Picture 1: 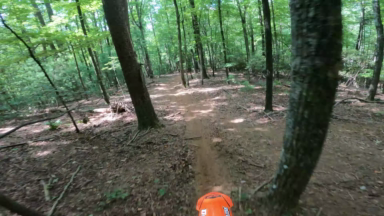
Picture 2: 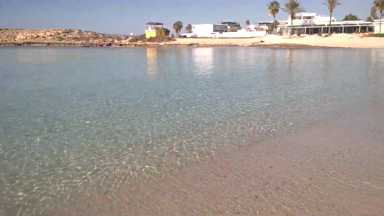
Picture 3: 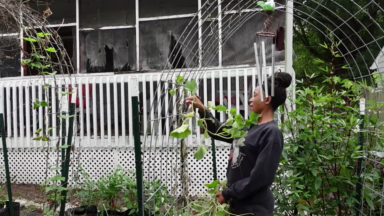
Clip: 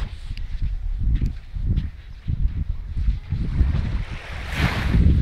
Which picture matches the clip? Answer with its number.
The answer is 2